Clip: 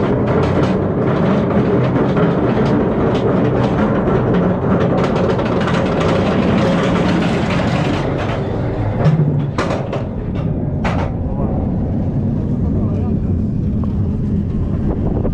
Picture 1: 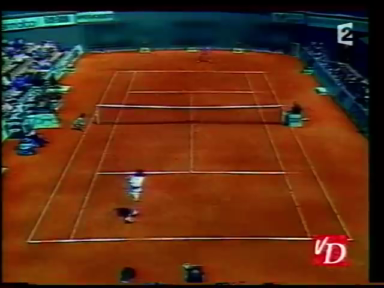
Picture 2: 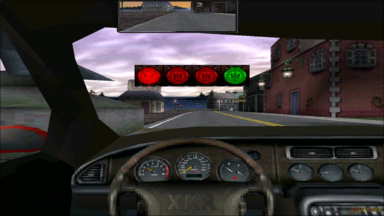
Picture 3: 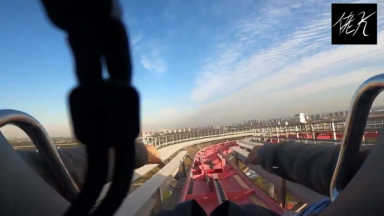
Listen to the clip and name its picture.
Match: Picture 3